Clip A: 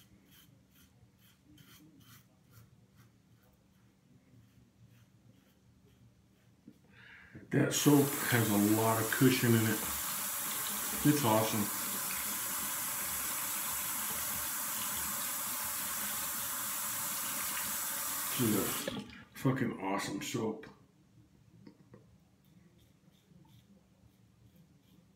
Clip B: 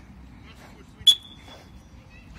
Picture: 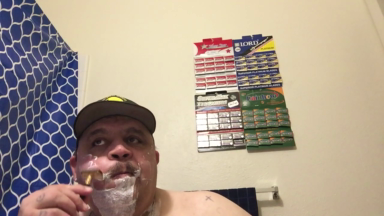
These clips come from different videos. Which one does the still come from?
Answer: A